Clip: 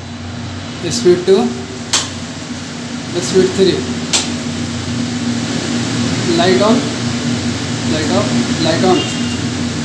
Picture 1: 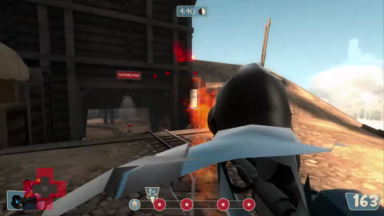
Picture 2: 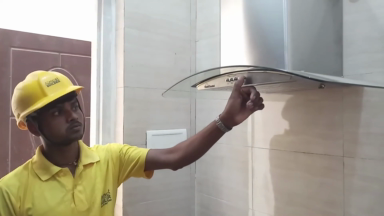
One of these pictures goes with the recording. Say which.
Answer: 2